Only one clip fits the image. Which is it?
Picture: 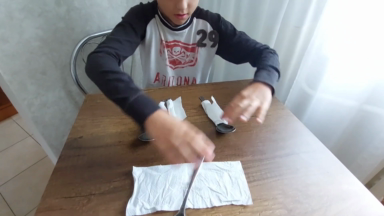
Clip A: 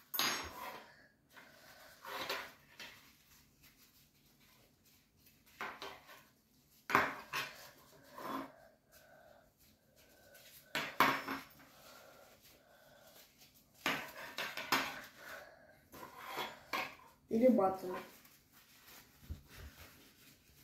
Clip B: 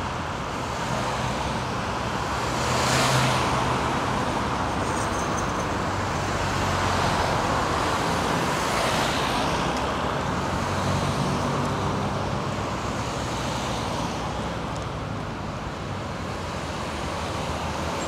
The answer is A